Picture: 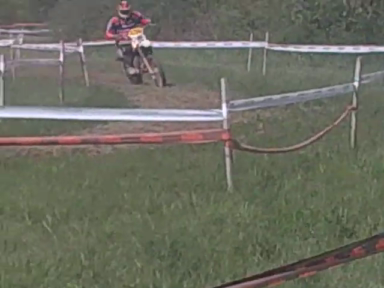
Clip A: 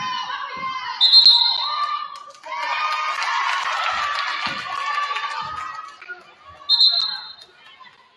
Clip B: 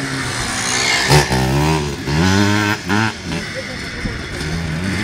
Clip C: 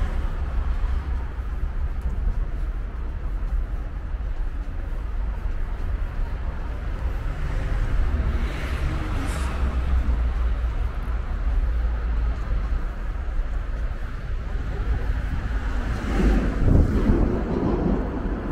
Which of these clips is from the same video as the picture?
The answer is B